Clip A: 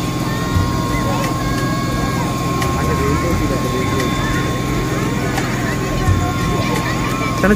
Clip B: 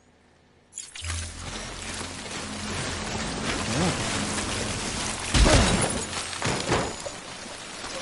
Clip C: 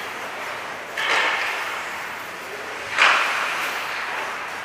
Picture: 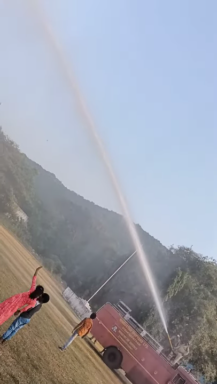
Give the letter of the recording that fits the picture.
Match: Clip A